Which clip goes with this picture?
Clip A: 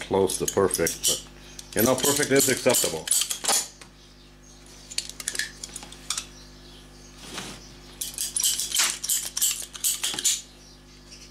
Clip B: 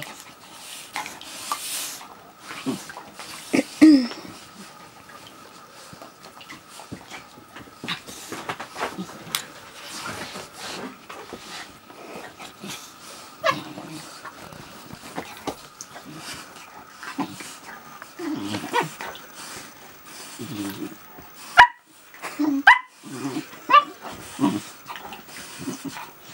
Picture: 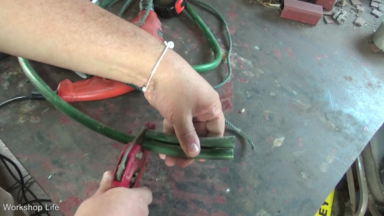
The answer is A